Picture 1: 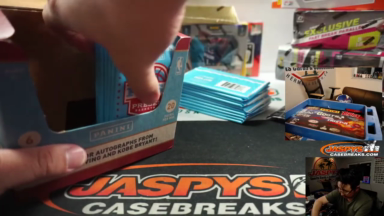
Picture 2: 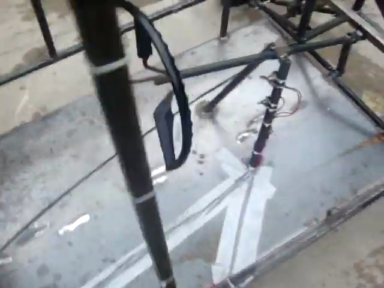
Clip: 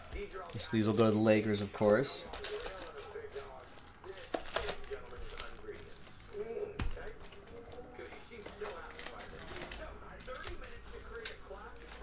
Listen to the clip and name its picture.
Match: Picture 1